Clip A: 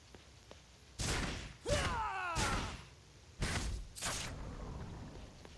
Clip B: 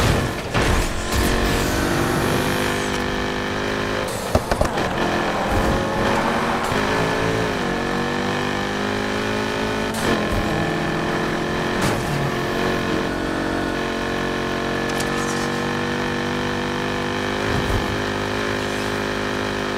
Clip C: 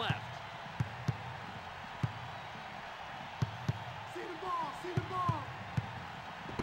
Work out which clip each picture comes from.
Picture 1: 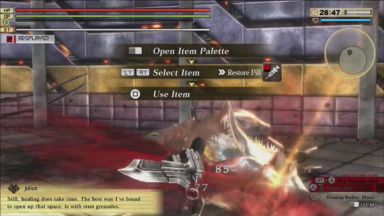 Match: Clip A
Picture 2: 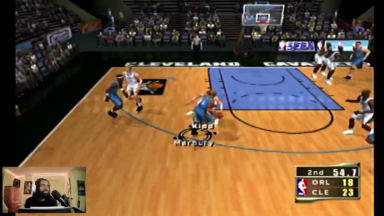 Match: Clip C